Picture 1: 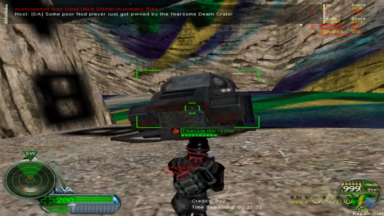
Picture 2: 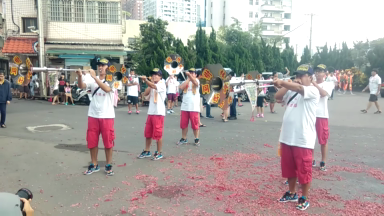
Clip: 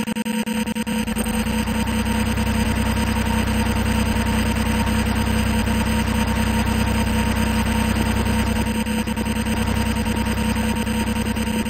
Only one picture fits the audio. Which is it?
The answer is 1